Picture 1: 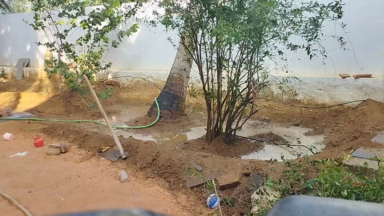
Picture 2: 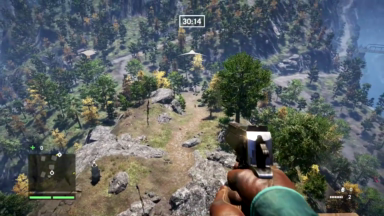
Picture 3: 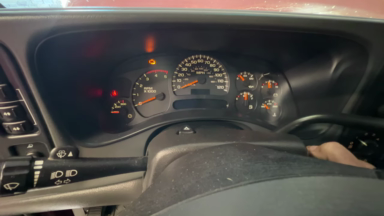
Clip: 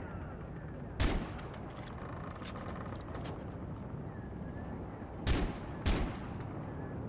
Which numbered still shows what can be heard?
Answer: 2